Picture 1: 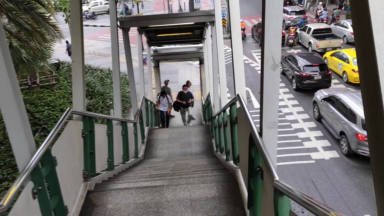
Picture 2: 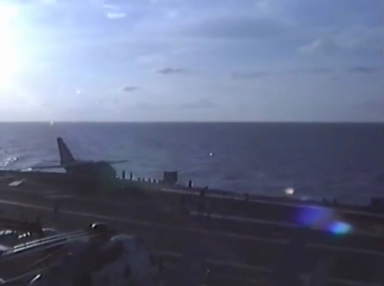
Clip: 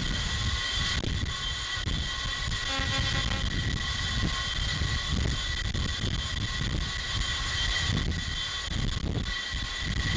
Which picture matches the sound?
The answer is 2